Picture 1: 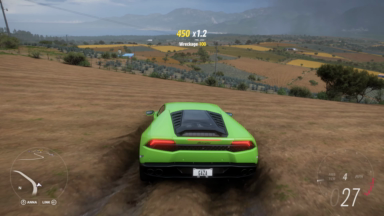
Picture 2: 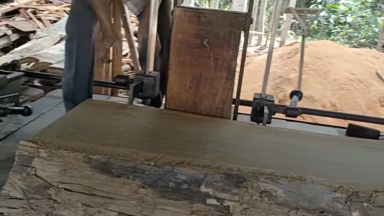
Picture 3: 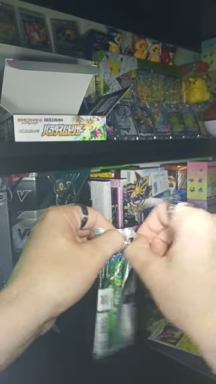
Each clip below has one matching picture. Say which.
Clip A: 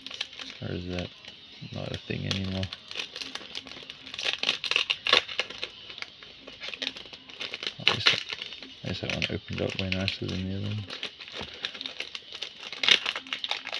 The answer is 3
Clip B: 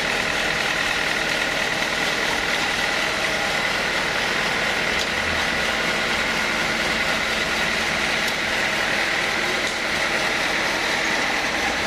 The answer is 2